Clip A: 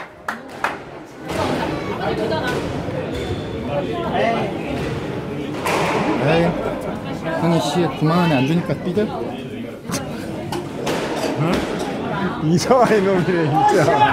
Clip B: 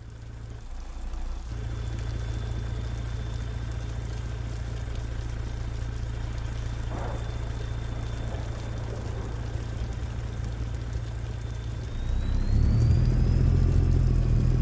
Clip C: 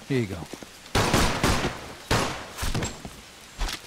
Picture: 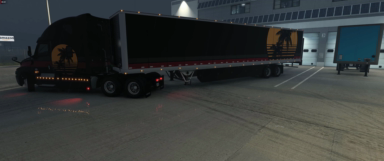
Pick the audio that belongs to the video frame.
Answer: B